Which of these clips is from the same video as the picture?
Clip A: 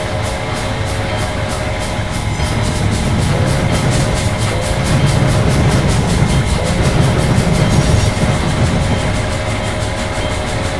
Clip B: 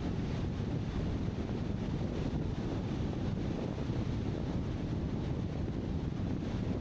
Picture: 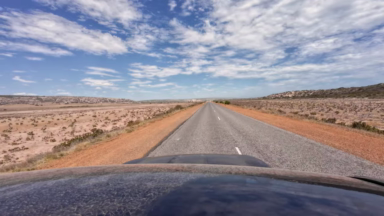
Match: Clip B